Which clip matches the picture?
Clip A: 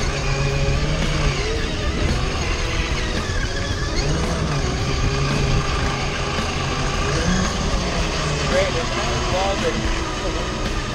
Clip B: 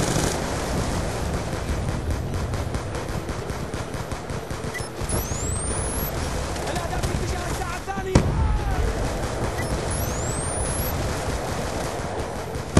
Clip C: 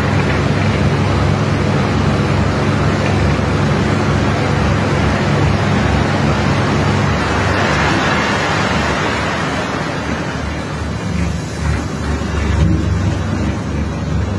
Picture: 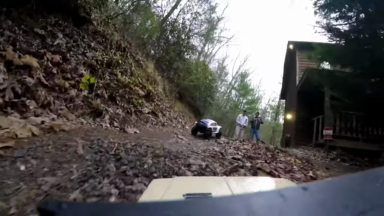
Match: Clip A